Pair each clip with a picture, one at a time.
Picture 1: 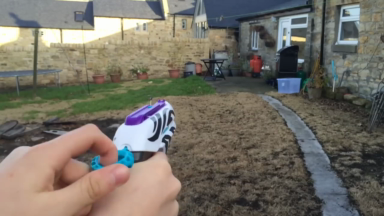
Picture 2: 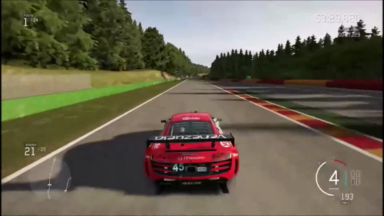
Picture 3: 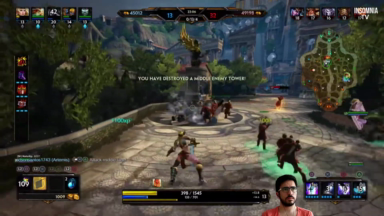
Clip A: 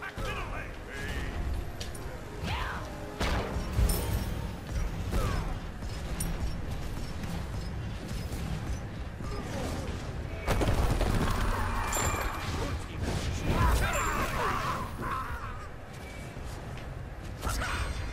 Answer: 3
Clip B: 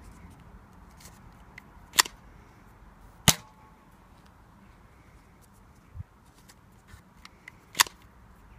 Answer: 1